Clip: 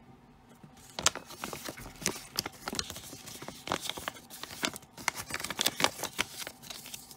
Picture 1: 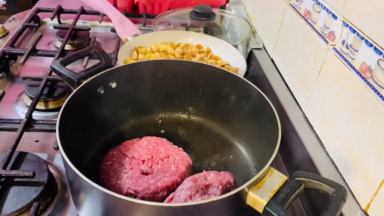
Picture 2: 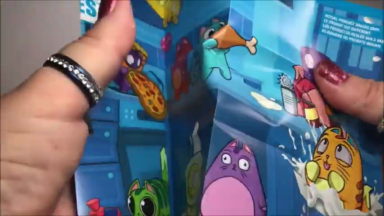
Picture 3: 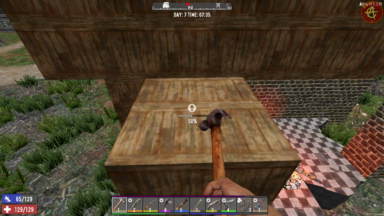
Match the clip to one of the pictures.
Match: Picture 2